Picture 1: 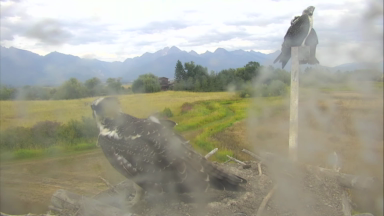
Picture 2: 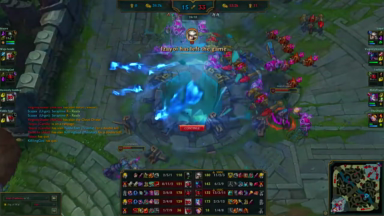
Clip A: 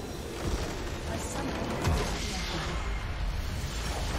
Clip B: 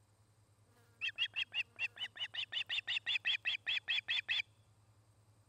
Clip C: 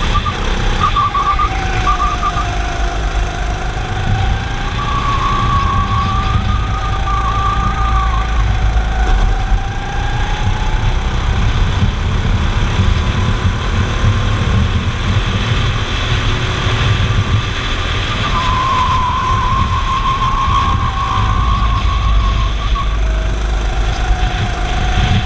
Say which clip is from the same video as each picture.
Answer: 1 B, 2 A